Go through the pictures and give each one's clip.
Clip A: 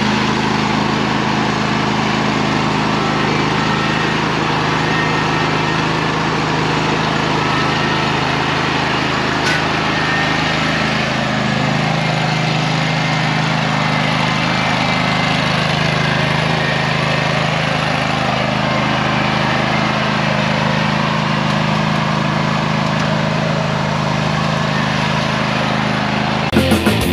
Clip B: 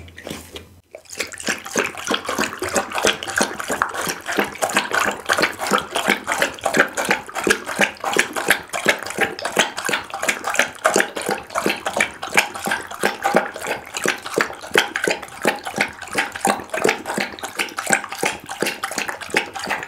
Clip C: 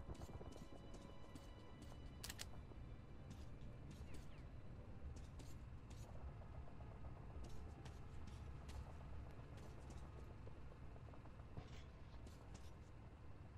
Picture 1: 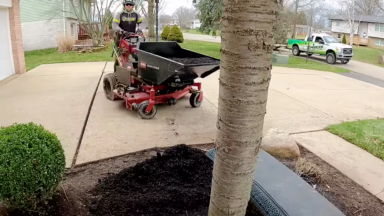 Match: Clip A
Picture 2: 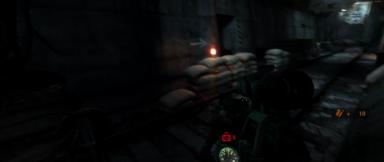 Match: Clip C